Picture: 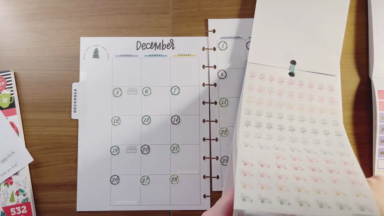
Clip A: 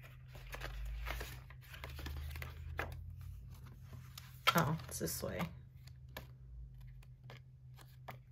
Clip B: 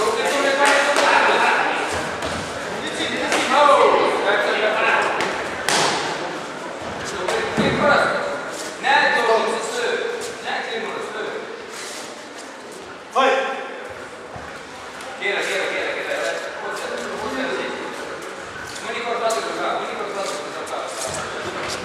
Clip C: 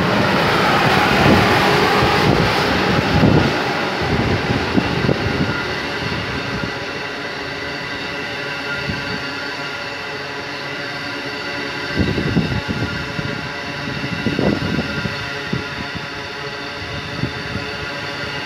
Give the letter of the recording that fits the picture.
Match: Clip A